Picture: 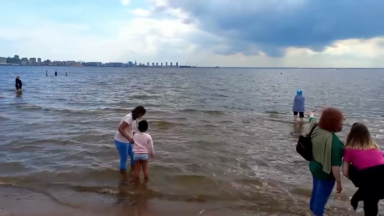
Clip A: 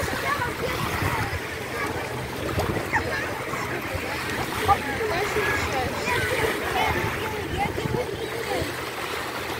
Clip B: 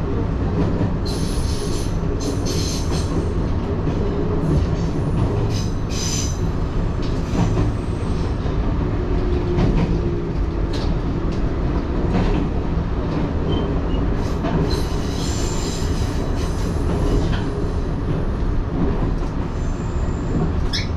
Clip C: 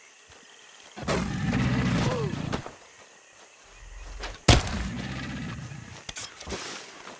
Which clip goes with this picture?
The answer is A